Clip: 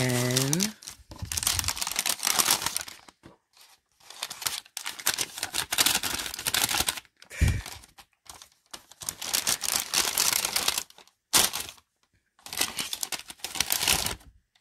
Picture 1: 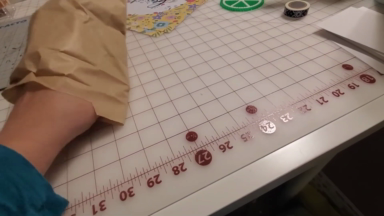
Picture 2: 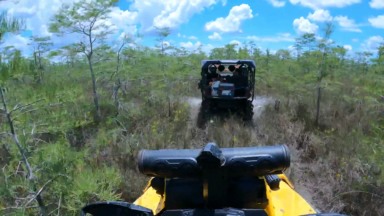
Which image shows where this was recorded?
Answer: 1